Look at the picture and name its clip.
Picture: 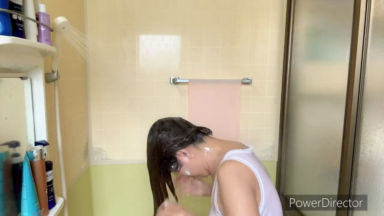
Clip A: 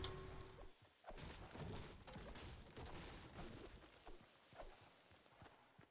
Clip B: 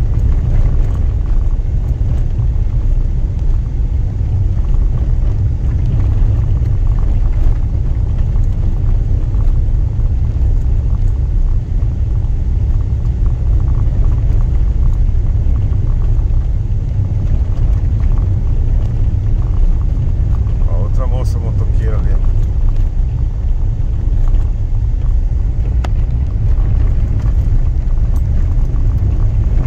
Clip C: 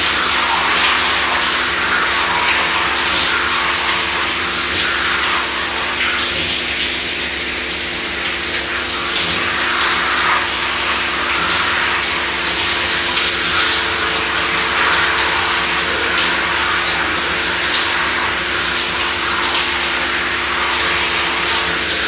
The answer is C